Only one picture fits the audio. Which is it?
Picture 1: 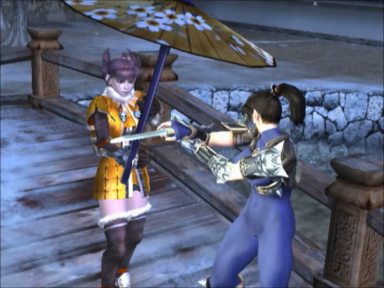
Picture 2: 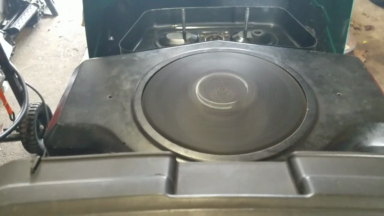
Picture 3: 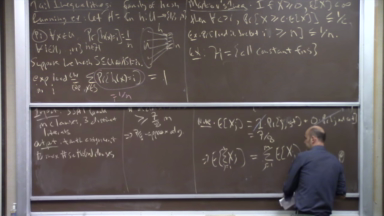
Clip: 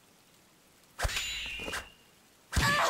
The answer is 1